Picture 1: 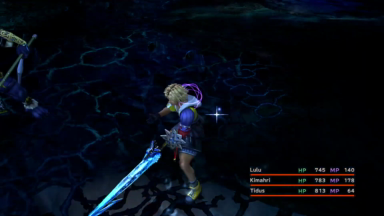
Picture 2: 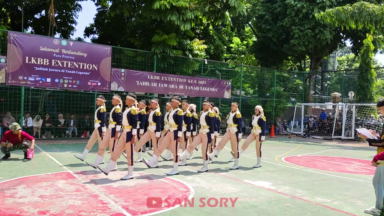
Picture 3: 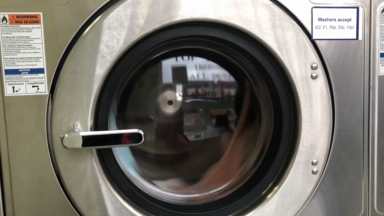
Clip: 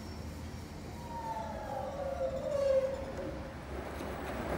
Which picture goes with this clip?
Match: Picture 3